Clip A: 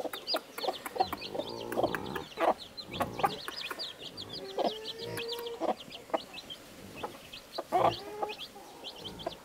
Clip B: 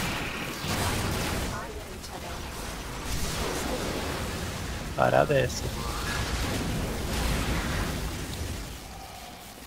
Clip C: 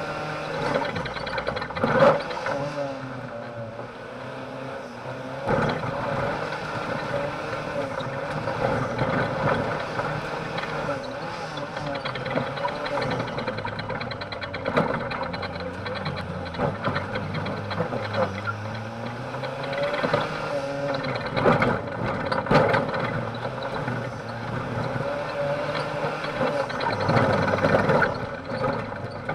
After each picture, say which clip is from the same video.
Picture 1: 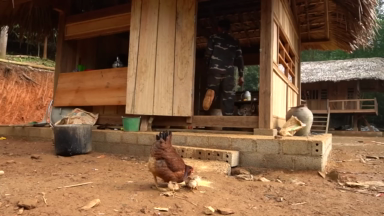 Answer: A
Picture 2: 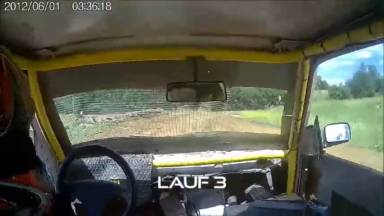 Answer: C